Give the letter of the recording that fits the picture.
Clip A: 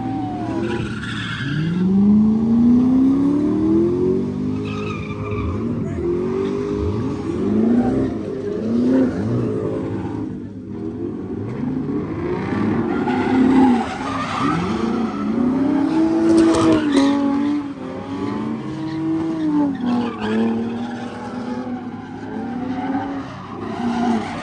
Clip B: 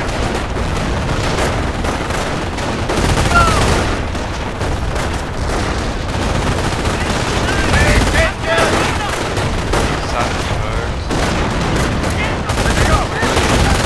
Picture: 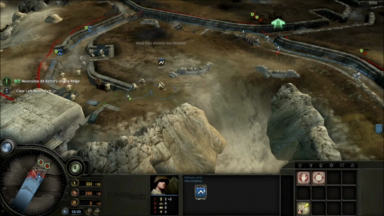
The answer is B